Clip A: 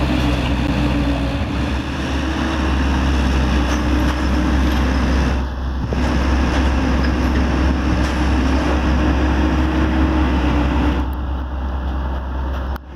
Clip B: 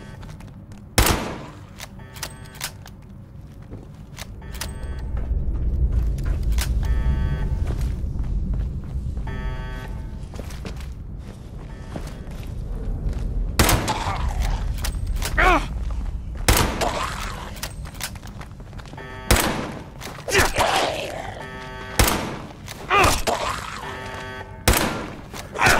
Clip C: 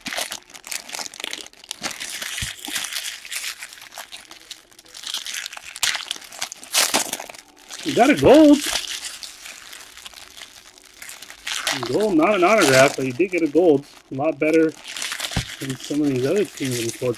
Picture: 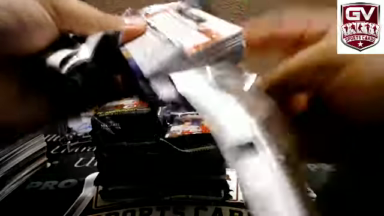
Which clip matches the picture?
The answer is C